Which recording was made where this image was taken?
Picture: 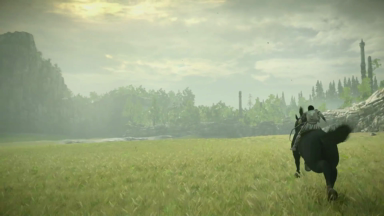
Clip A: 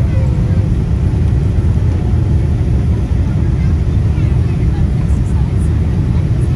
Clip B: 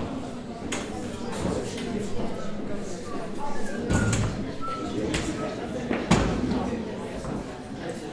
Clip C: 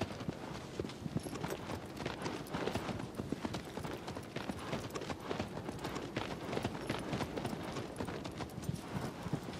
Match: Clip C